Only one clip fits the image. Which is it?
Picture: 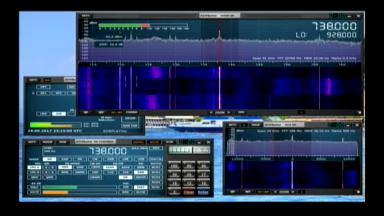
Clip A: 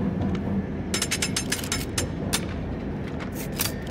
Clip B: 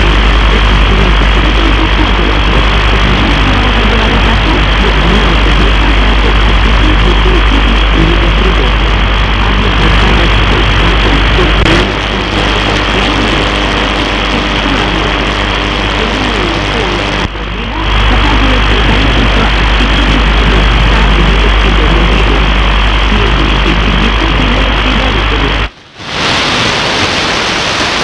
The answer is B